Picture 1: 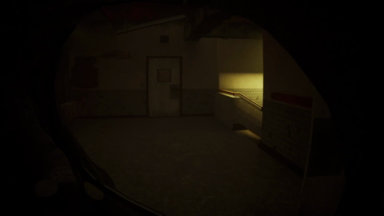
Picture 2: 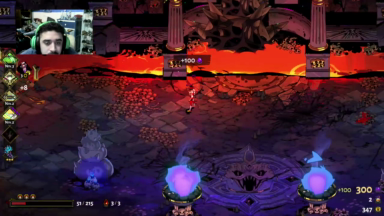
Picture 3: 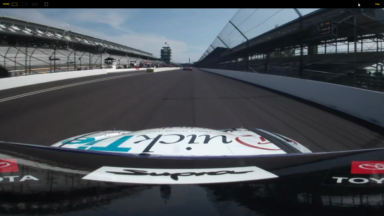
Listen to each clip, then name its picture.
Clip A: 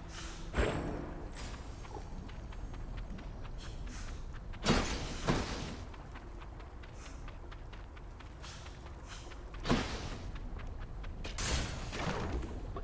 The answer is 2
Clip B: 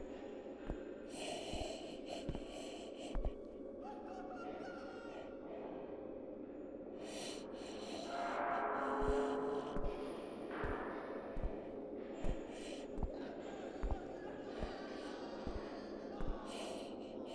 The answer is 1